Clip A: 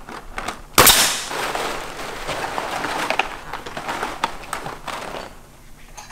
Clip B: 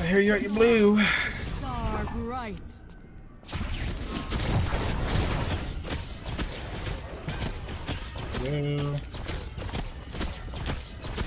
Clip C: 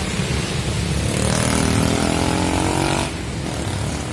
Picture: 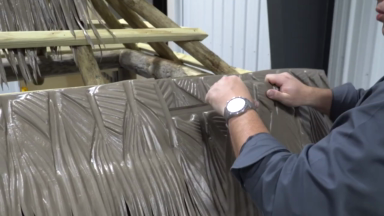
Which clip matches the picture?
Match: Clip A